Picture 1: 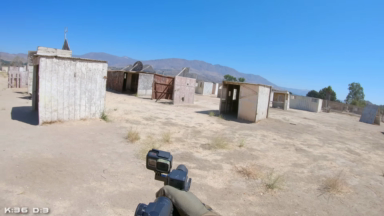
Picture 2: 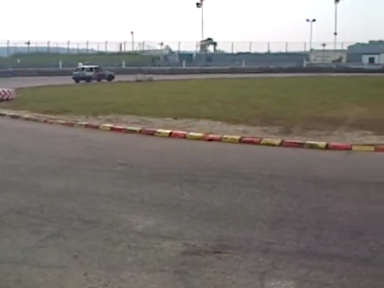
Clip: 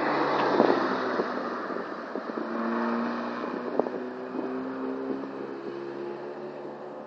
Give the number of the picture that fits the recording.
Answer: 2